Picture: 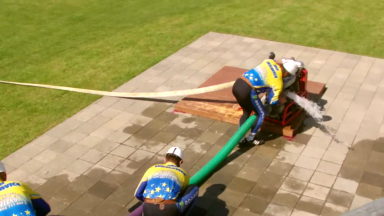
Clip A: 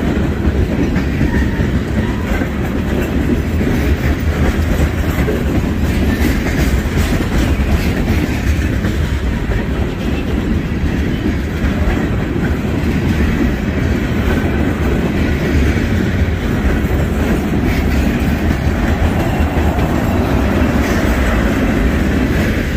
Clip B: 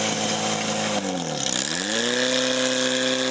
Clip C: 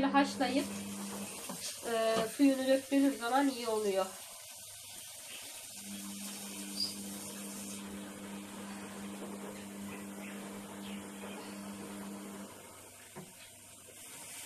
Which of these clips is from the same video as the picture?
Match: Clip B